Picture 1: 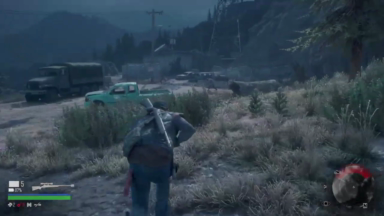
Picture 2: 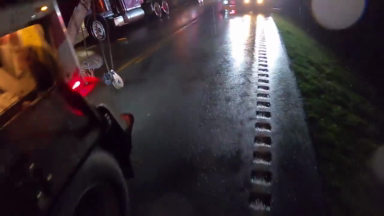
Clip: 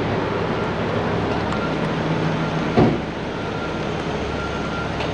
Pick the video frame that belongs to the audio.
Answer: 2